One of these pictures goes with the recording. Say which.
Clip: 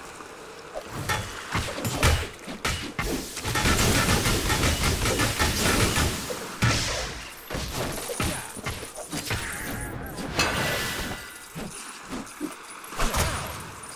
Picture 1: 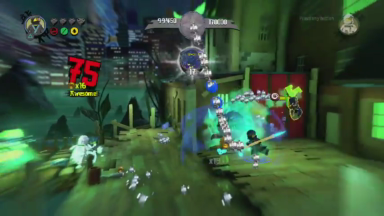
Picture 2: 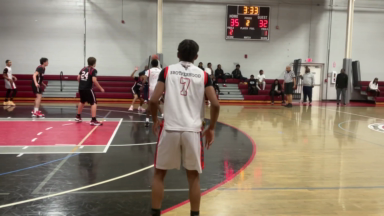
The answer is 1